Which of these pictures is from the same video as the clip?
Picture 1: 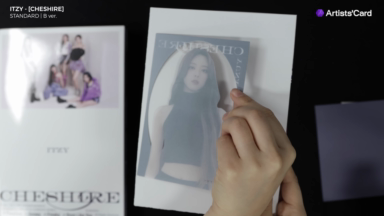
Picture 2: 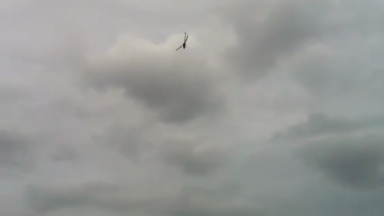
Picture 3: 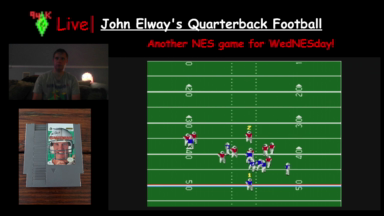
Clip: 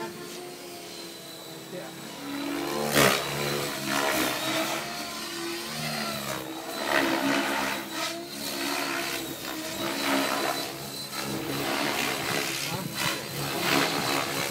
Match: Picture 2